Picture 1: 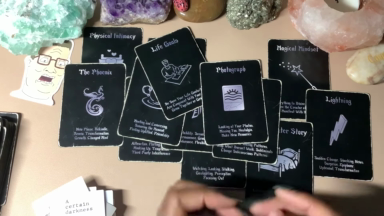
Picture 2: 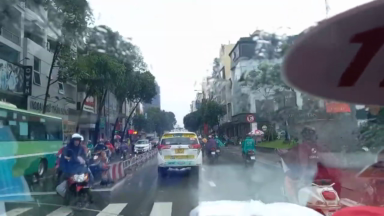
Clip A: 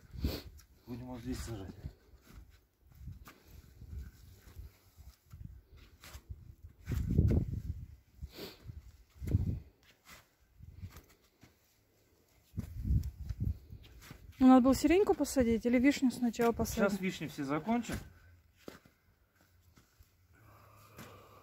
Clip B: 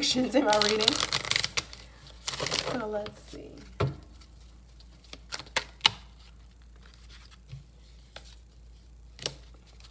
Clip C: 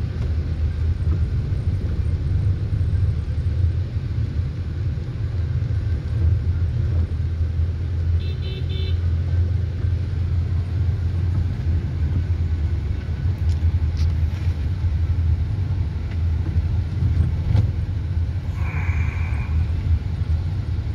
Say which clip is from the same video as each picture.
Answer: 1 B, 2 C